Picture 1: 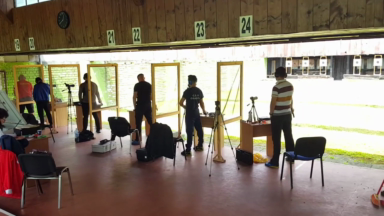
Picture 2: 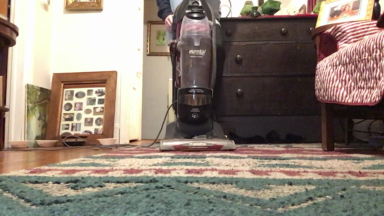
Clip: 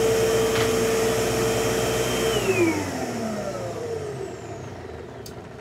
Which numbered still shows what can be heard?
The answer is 2